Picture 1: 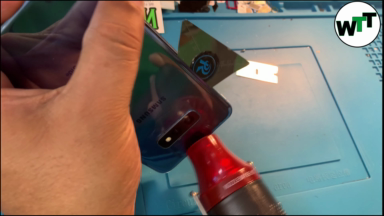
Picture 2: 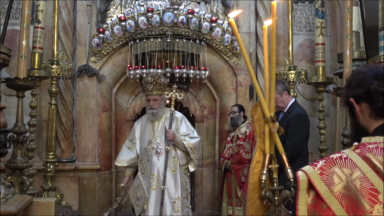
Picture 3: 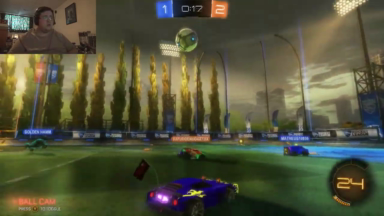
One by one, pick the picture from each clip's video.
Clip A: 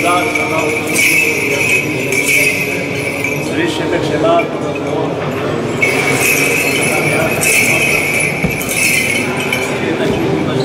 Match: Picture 2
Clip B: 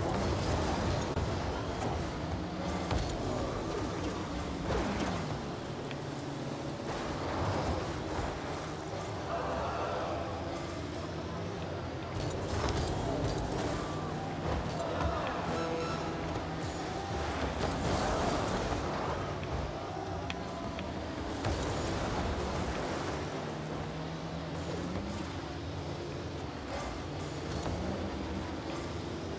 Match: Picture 3